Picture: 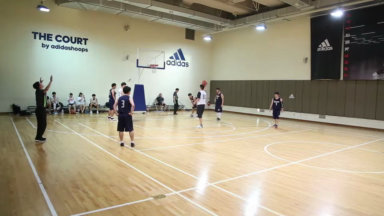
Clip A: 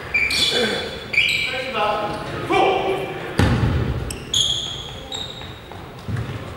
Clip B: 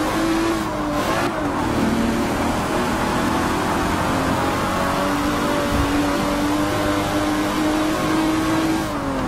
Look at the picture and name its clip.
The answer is A